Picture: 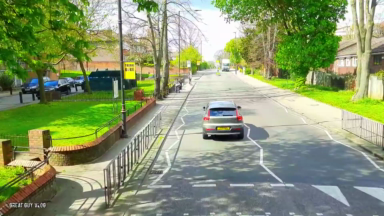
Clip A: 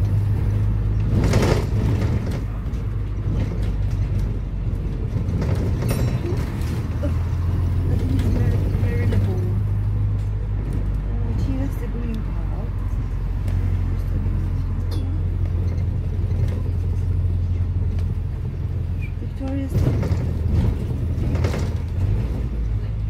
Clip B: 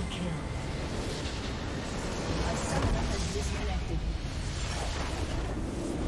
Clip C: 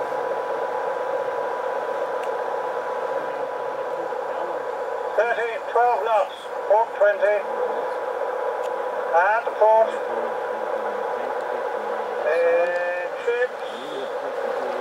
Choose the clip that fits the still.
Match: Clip A